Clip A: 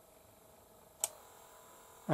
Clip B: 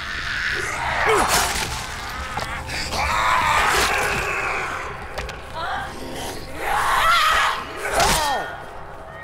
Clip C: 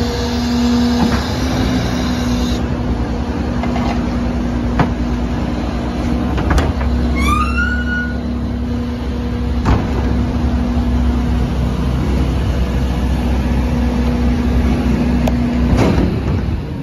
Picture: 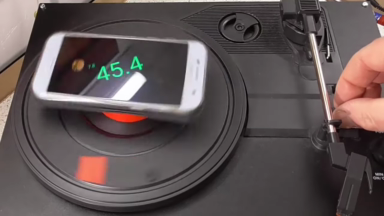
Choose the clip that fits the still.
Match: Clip A